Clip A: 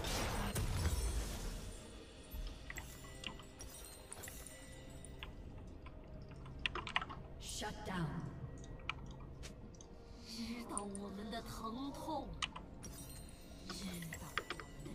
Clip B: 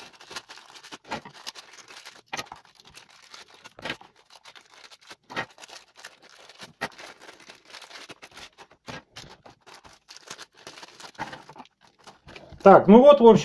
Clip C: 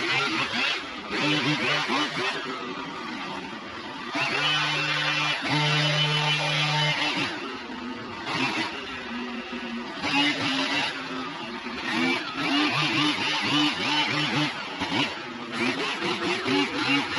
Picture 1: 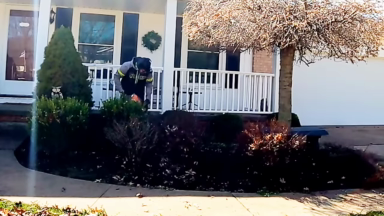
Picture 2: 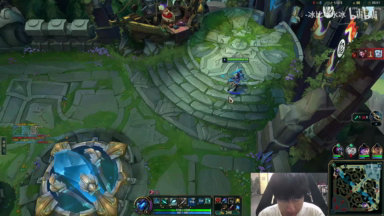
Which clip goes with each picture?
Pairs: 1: C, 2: A